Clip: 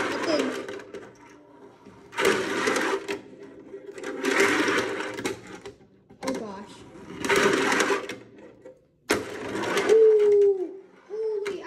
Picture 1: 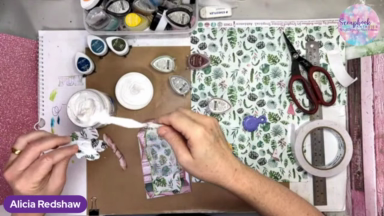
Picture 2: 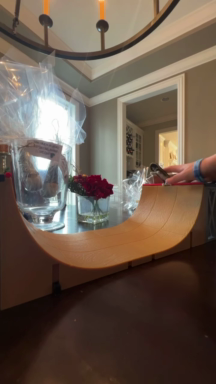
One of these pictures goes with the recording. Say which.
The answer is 2